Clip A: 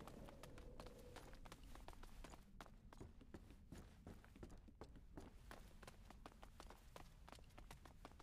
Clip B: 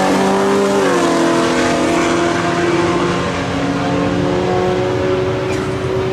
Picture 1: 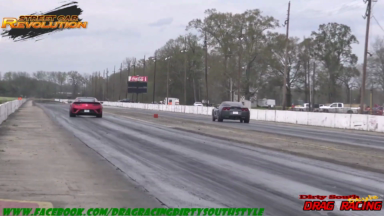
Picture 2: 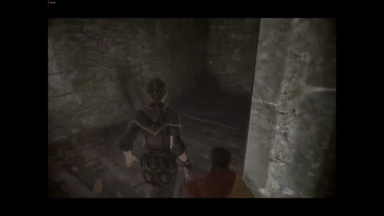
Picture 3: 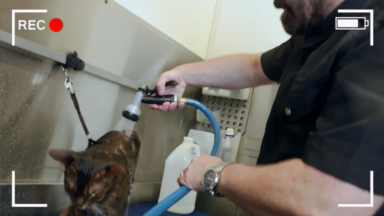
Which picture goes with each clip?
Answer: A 2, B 1